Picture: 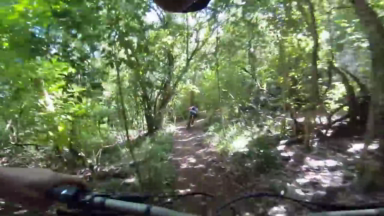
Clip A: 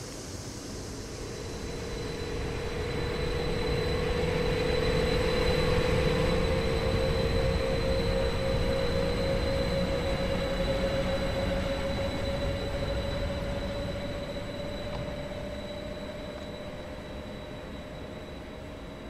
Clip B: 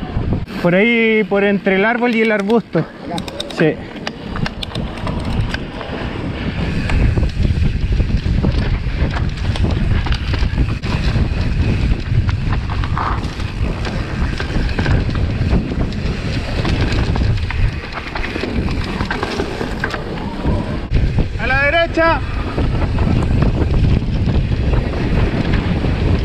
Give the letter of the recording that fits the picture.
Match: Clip B